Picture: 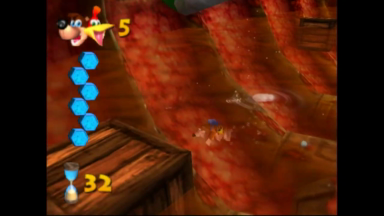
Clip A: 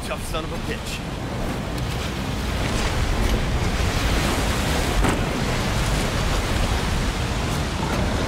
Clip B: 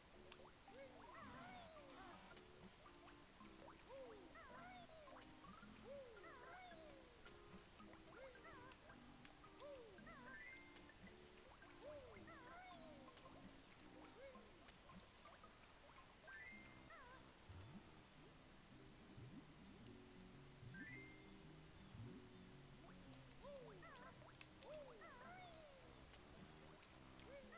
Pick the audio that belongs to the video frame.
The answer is B